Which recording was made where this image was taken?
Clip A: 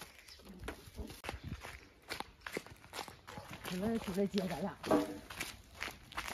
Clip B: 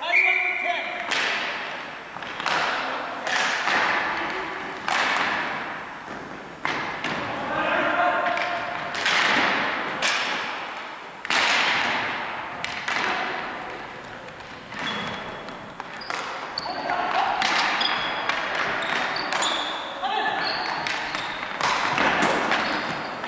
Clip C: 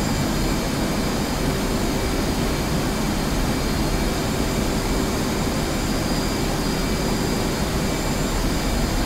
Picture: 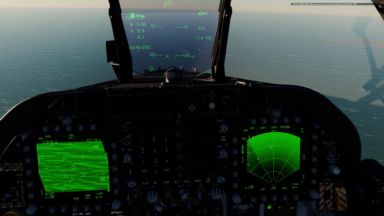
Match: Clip C